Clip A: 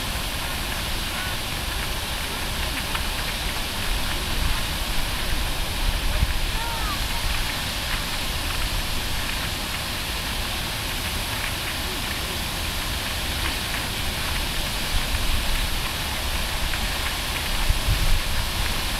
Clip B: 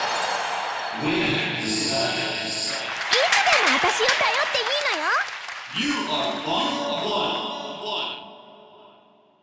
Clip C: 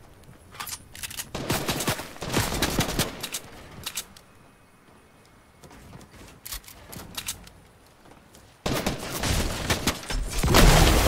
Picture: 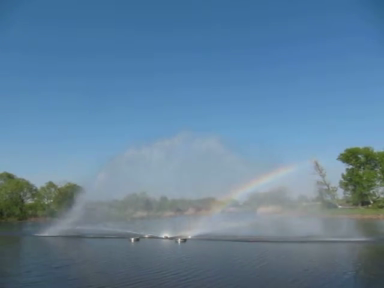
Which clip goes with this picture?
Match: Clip A